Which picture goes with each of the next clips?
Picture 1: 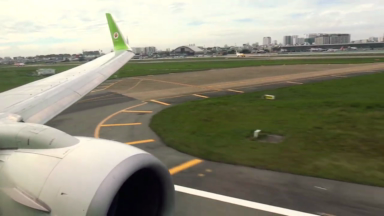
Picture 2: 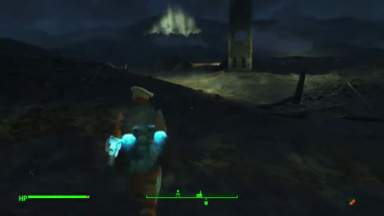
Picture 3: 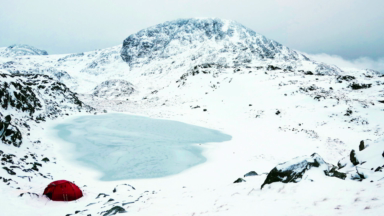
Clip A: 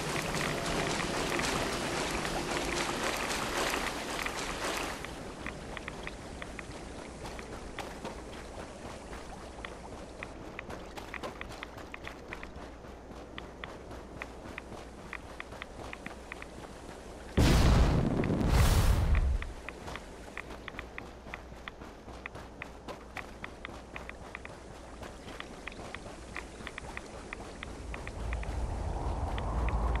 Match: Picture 2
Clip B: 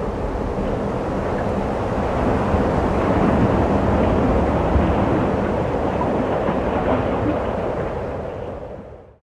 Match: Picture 3